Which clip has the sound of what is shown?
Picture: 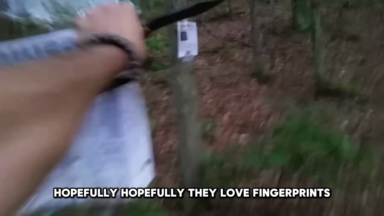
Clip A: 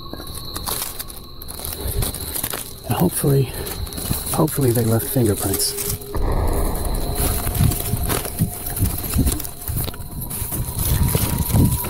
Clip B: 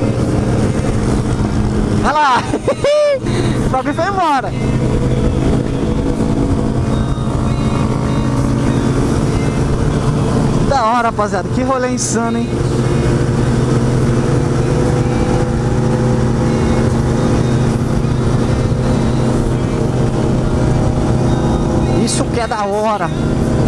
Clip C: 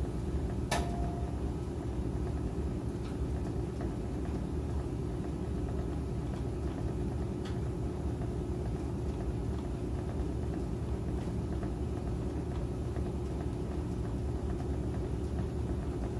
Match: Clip A